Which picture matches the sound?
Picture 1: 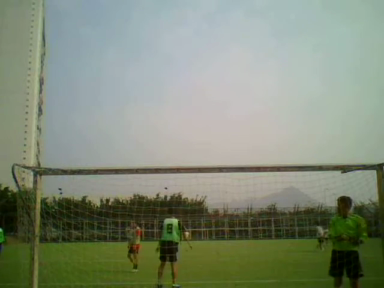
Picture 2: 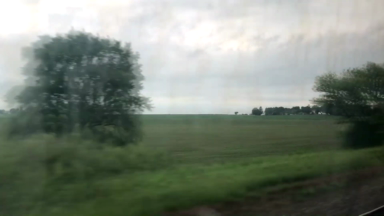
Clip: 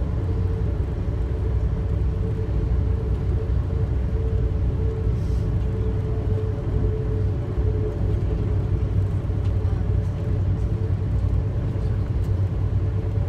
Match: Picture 2